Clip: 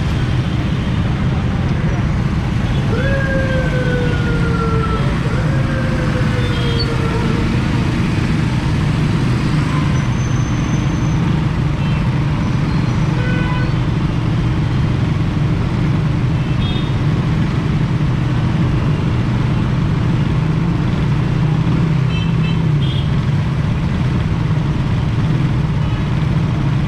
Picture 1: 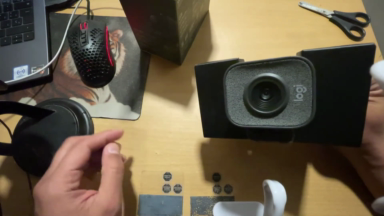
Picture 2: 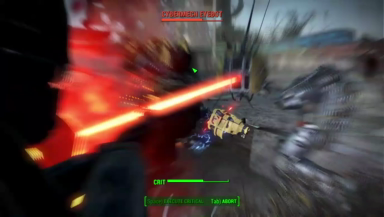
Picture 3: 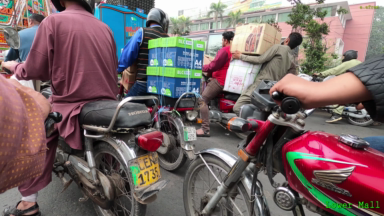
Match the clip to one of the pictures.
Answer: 3